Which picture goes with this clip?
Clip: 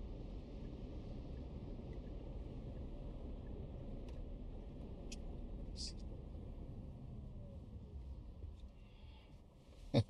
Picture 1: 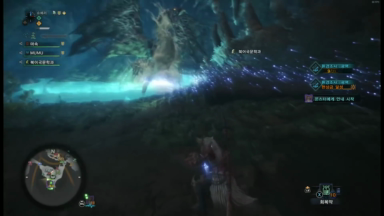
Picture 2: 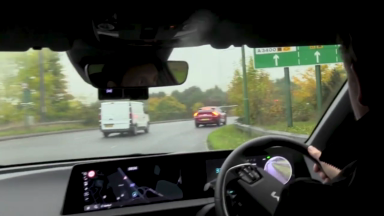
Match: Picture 2